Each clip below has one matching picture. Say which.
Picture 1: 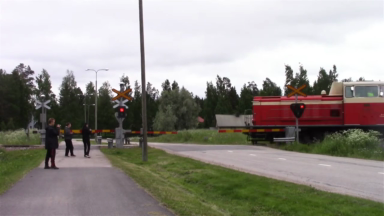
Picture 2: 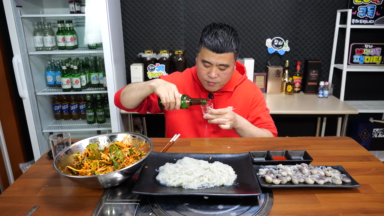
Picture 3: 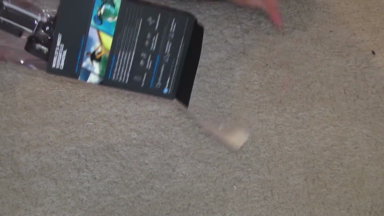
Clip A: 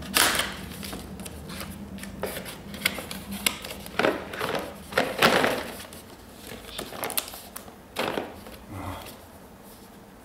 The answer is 3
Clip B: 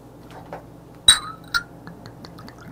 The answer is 2